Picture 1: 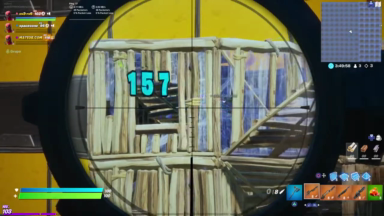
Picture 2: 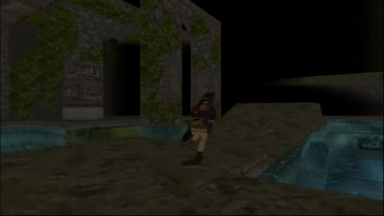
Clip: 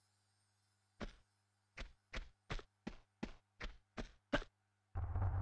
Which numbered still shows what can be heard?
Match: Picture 2